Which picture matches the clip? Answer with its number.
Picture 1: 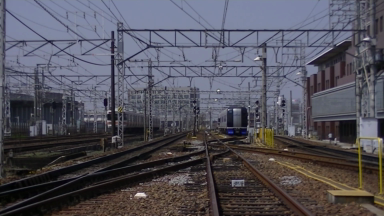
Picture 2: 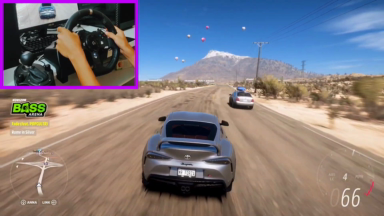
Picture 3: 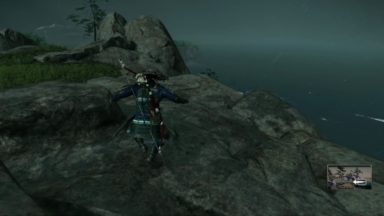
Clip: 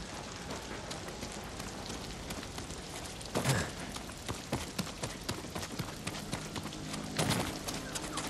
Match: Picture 3